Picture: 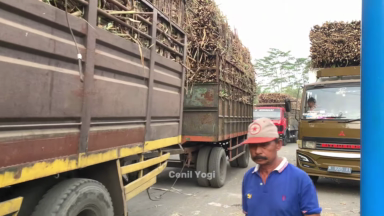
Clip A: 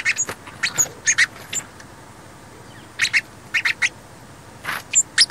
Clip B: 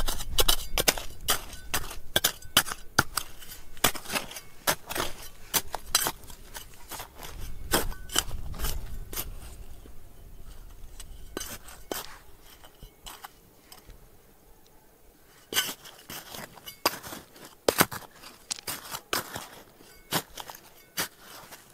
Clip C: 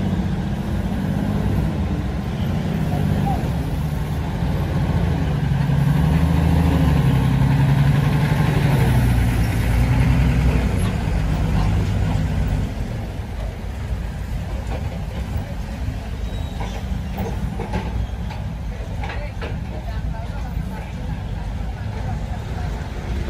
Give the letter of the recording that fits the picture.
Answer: C